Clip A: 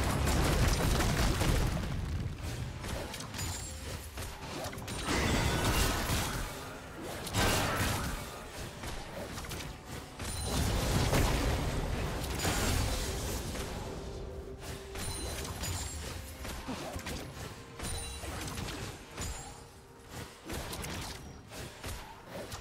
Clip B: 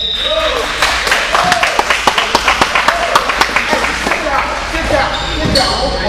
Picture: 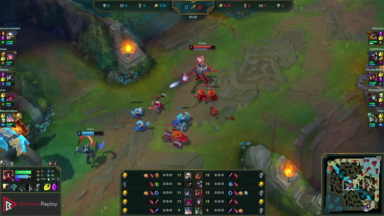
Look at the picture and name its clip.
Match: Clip A